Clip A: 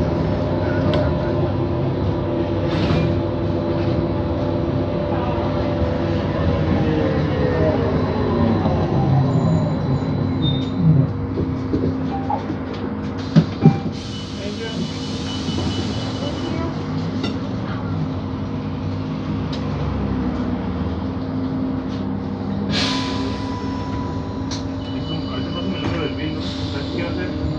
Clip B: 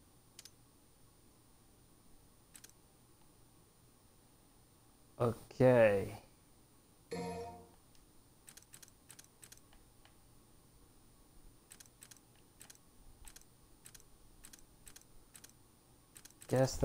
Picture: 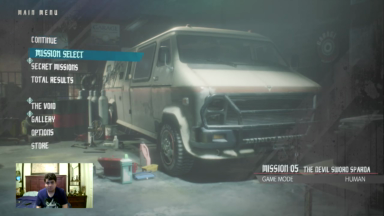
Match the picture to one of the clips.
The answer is B